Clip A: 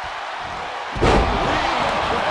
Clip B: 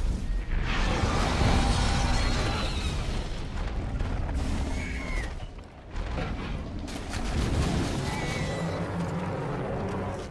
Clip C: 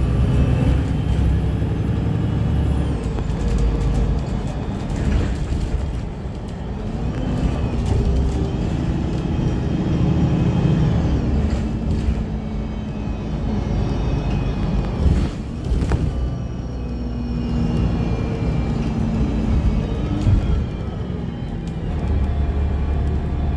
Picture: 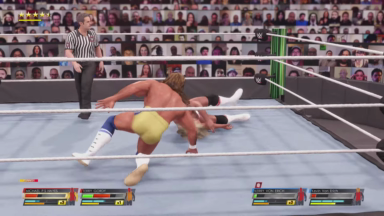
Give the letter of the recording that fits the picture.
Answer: A